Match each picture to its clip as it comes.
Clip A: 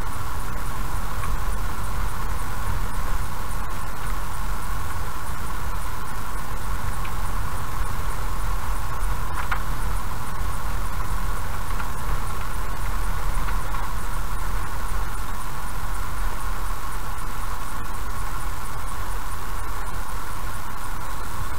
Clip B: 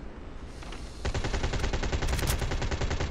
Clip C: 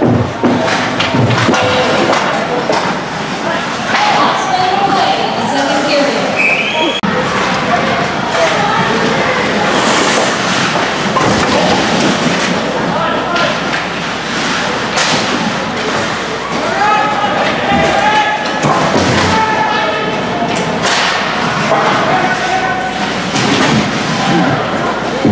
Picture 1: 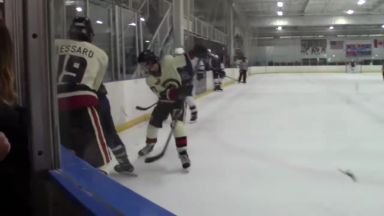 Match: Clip C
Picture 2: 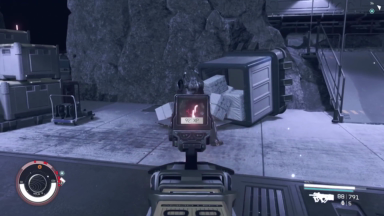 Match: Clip B